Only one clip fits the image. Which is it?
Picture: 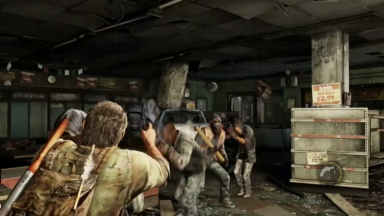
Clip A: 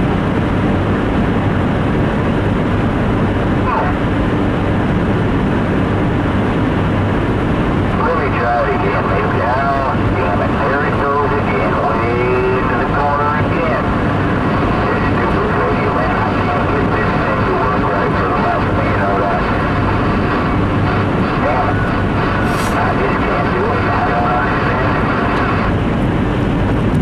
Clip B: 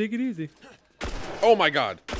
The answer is B